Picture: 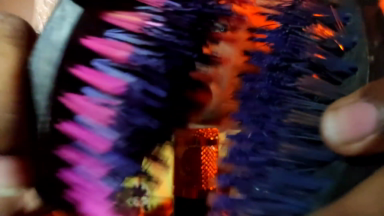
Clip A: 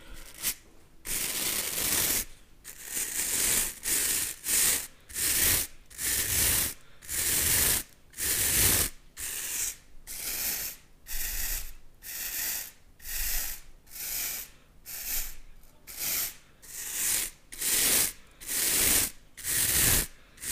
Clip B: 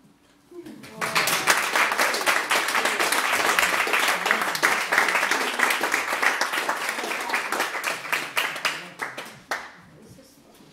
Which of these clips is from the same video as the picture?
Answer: A